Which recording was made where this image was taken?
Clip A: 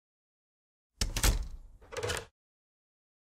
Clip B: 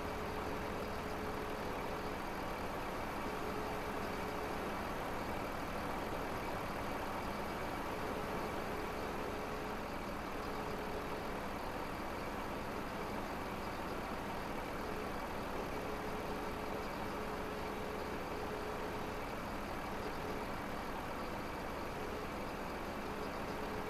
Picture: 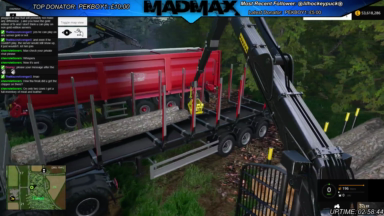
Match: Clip B